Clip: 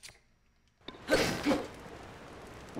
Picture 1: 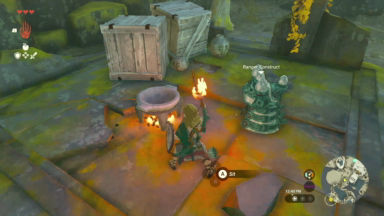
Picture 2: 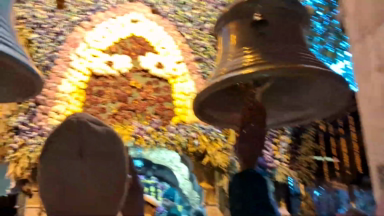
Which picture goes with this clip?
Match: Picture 1